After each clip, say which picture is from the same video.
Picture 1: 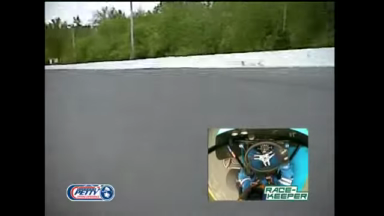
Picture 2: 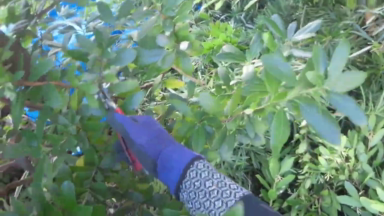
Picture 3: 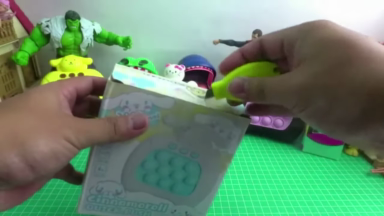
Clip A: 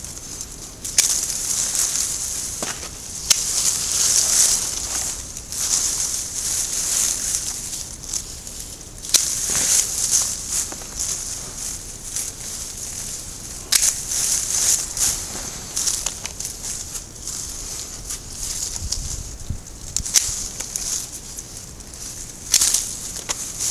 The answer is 2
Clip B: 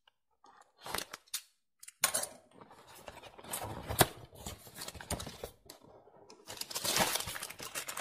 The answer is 3